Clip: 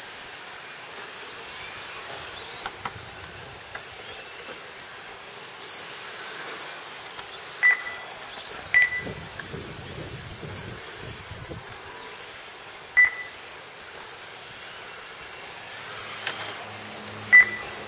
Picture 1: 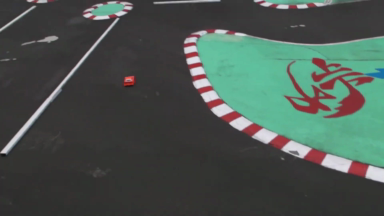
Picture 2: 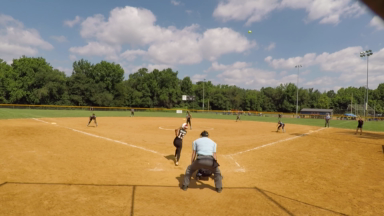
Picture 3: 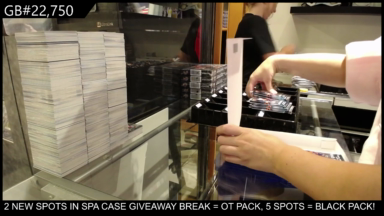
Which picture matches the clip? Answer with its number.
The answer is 1